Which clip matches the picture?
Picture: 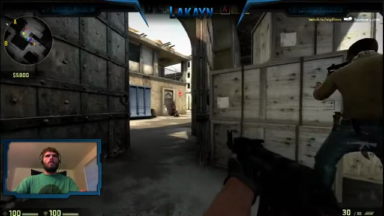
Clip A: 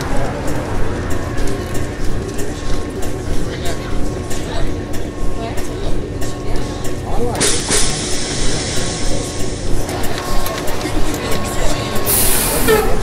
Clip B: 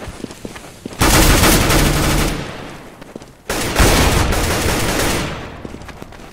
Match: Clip B